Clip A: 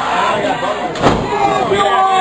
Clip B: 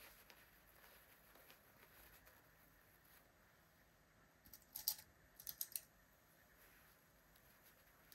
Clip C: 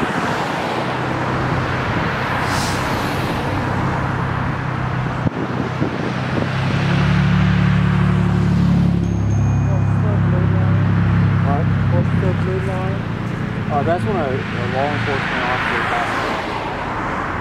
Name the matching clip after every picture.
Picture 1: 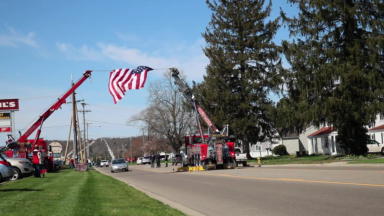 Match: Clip C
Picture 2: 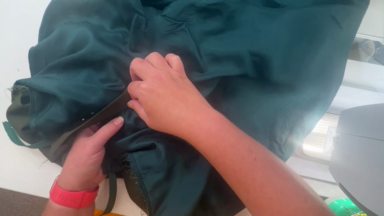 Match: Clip B